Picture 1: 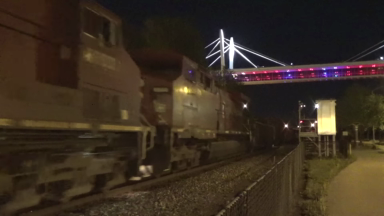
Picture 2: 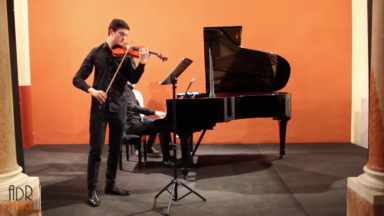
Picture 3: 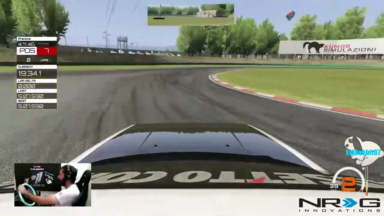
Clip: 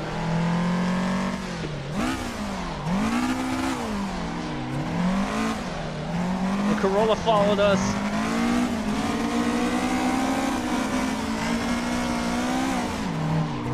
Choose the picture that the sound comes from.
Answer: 3